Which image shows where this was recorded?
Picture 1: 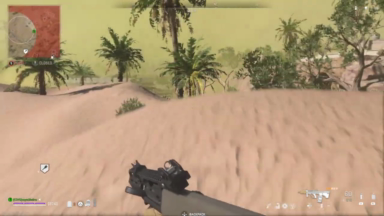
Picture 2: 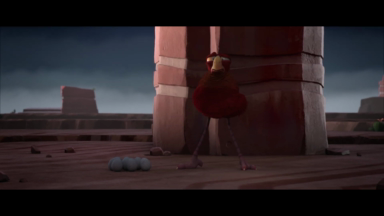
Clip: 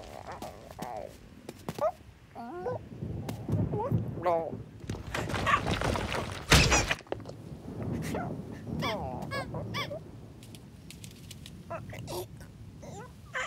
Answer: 2